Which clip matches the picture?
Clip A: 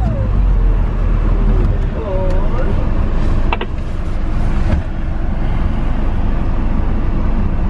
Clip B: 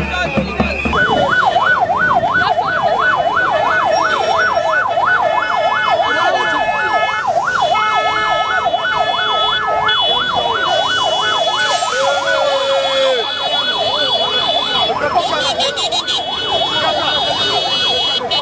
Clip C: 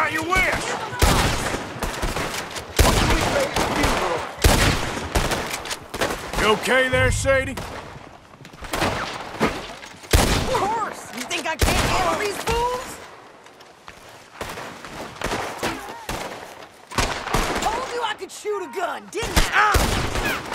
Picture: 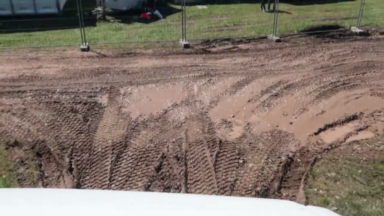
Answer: A